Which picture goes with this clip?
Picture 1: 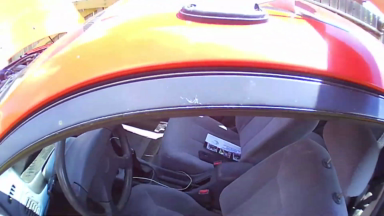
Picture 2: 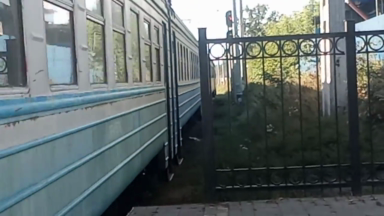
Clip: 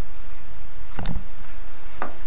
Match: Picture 1